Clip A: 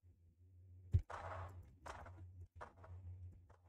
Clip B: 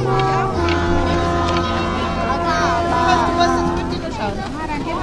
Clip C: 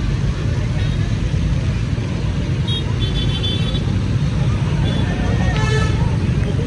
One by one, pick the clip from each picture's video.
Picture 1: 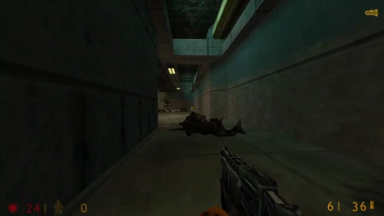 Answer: A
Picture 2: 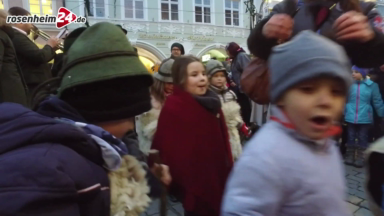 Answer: B